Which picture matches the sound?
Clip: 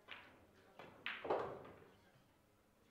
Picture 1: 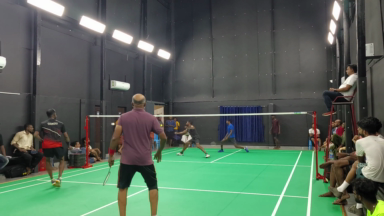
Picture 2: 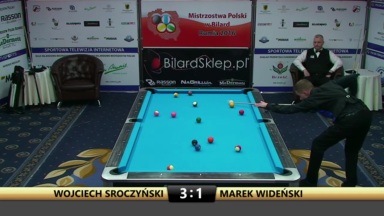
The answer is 2